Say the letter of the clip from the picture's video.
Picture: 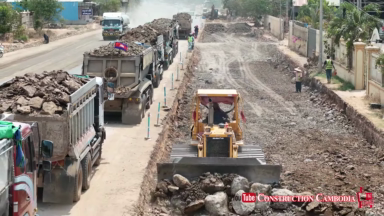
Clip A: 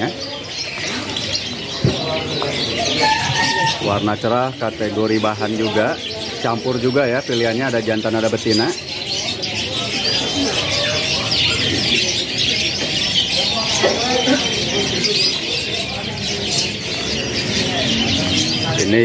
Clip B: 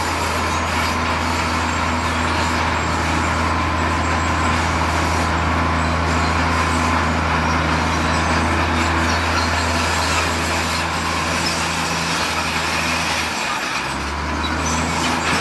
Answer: B